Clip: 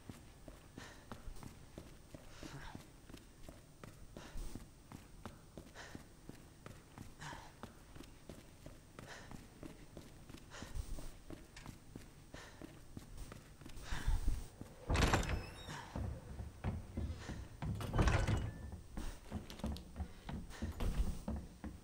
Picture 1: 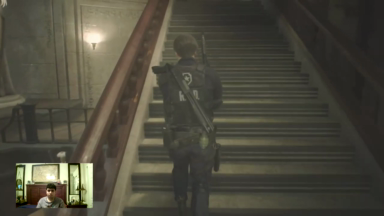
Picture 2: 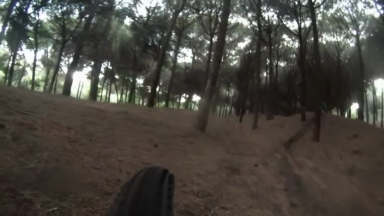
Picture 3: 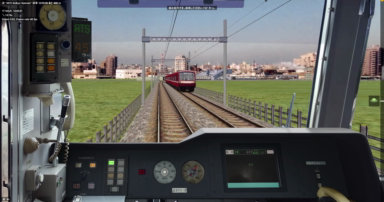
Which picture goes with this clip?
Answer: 1